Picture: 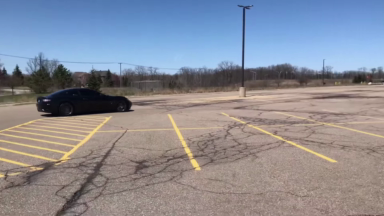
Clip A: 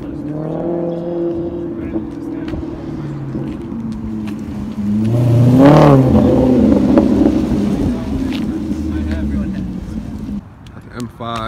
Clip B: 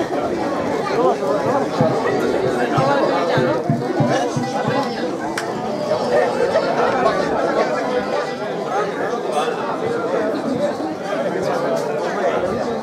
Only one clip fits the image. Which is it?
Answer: A